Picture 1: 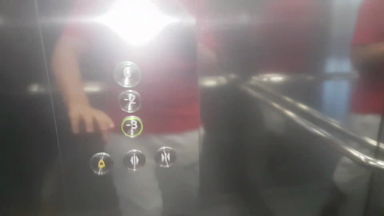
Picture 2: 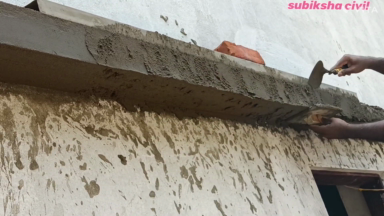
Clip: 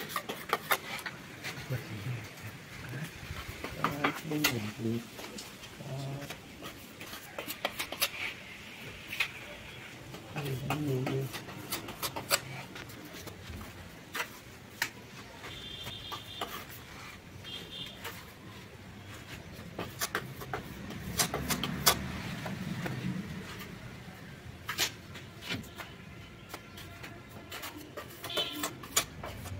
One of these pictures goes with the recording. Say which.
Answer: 2